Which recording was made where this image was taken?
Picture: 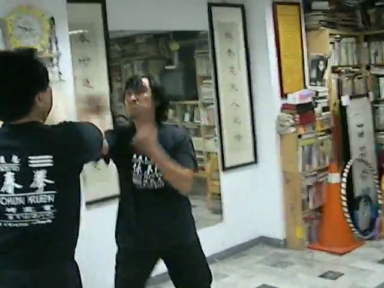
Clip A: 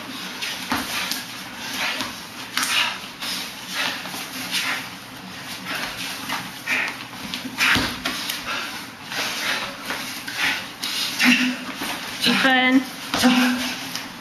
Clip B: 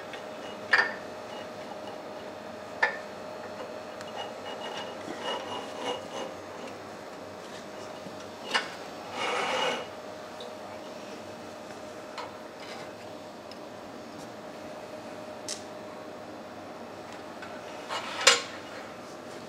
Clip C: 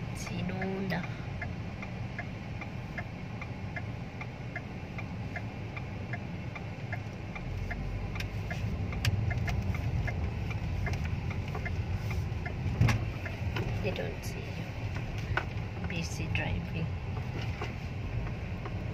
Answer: A